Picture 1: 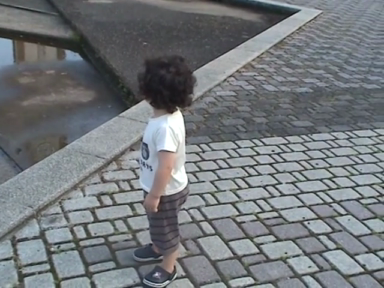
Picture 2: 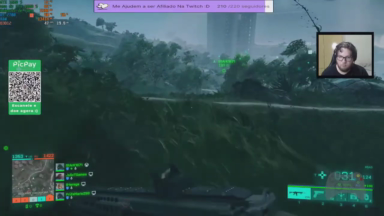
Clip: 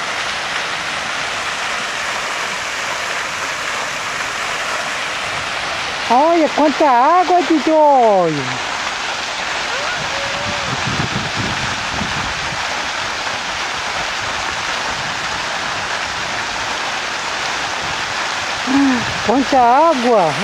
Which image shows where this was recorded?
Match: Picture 1